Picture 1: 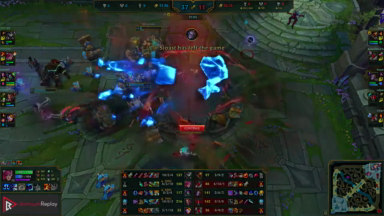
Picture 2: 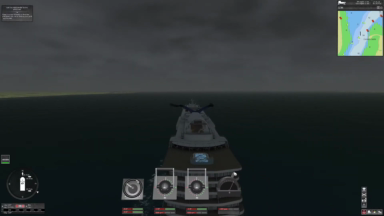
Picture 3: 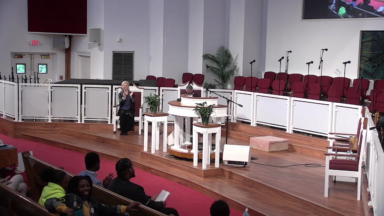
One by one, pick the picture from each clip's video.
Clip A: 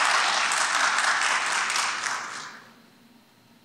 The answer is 3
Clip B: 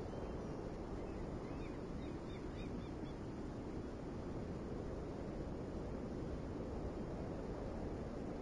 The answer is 2